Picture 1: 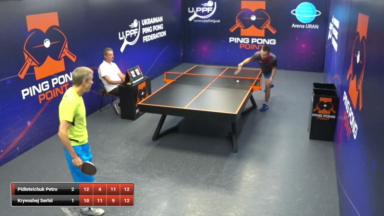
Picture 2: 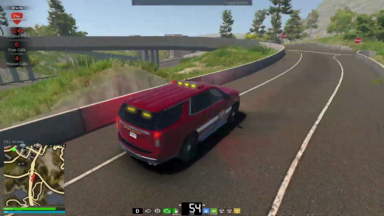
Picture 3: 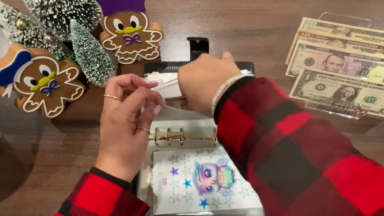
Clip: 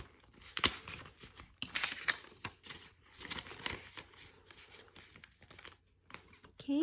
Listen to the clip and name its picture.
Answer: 3